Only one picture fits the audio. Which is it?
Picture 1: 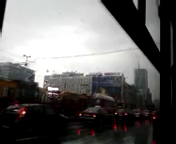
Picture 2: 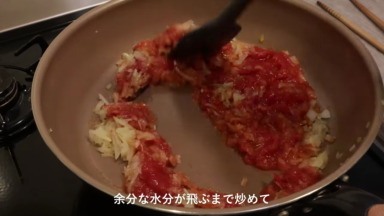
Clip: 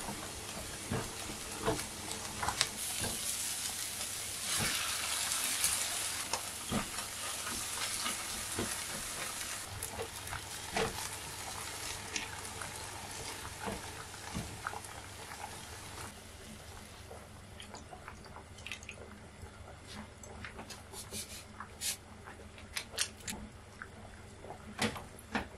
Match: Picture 2